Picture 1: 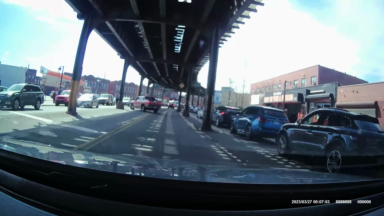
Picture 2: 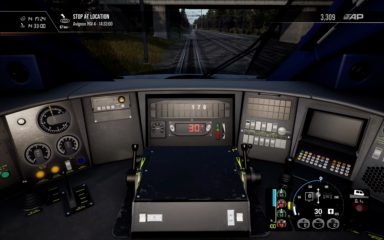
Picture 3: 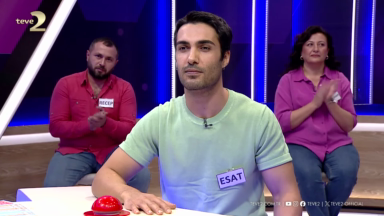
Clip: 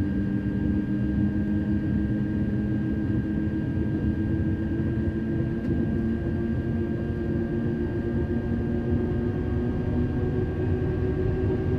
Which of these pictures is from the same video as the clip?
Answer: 2